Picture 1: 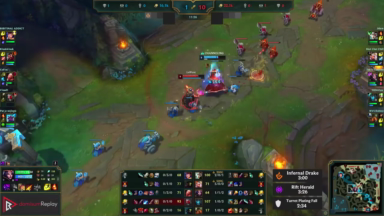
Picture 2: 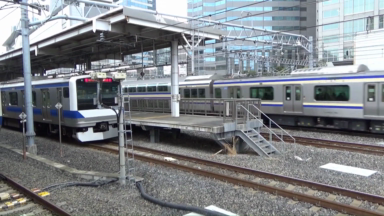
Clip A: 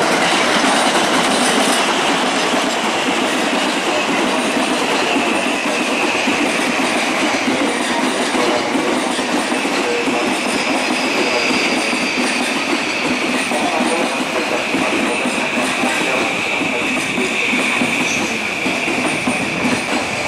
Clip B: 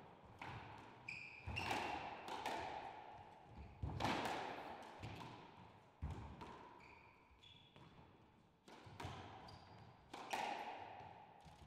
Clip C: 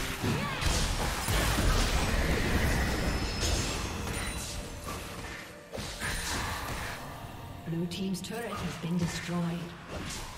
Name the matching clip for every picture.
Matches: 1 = C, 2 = A